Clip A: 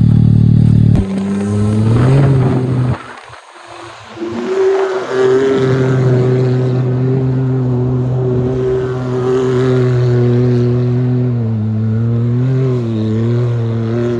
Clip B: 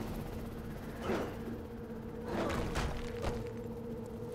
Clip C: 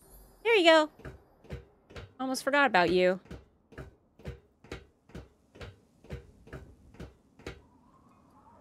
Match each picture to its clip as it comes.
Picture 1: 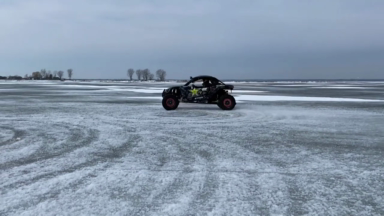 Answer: A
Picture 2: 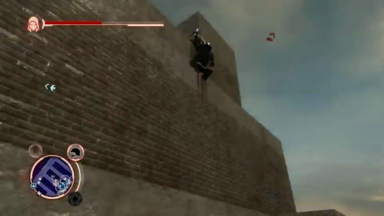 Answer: B